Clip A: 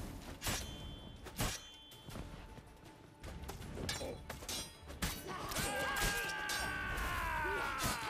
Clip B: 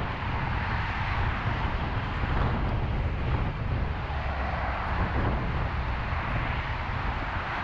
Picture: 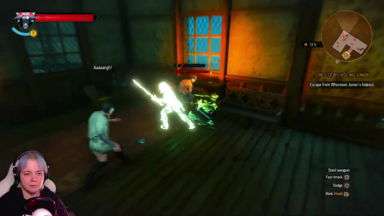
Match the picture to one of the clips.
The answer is A